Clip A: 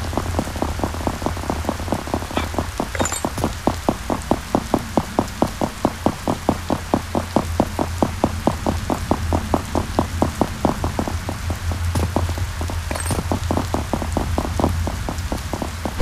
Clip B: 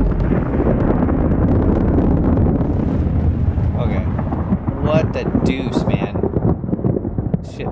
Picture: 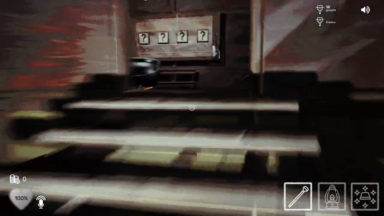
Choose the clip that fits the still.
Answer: A